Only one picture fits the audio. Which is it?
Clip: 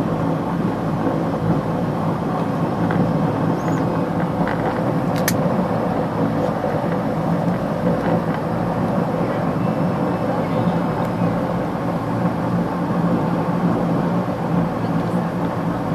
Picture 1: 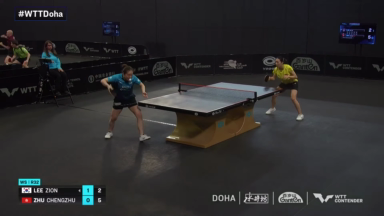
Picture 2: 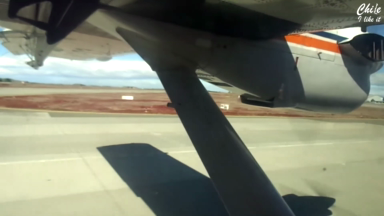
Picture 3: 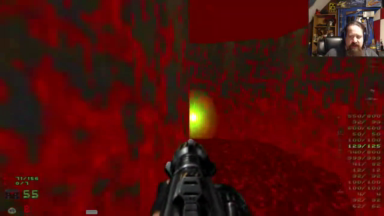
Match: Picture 2